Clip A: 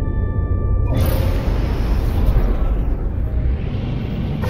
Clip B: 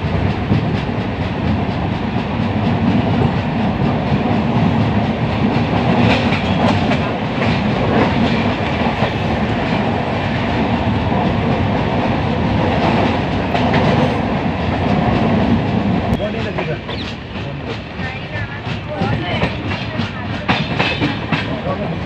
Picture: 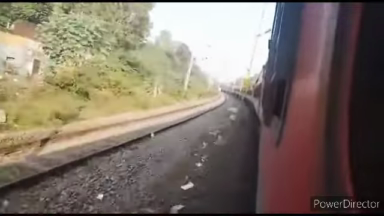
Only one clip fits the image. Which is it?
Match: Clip B